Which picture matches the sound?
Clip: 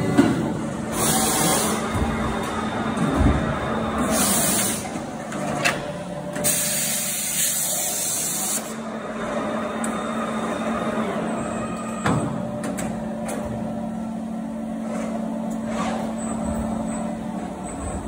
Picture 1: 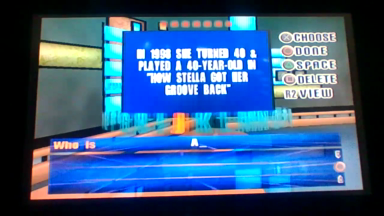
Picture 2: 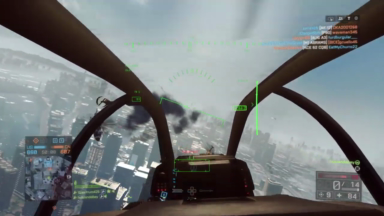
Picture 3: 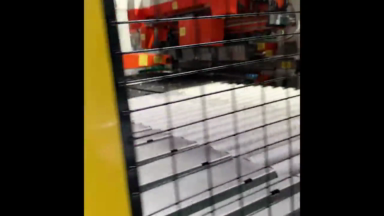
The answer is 3